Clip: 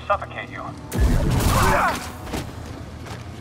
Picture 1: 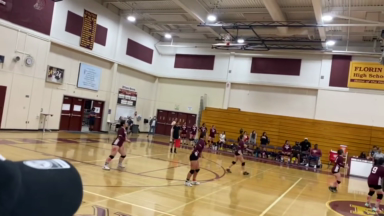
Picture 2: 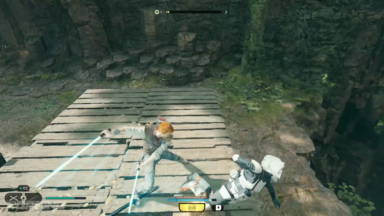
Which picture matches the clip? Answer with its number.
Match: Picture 2